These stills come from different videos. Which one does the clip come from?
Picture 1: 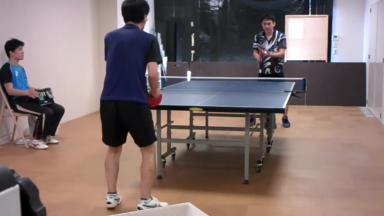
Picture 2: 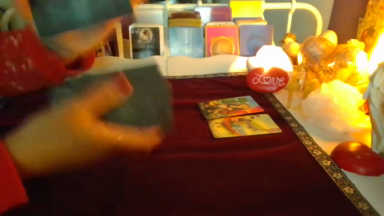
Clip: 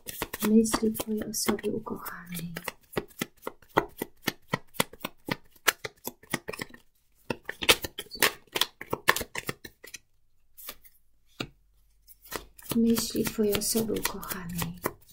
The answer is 2